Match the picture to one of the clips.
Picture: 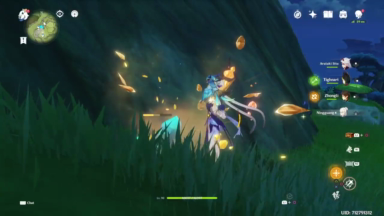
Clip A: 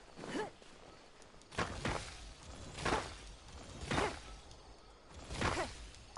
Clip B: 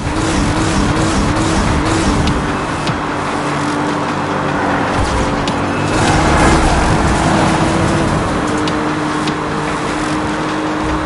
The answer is A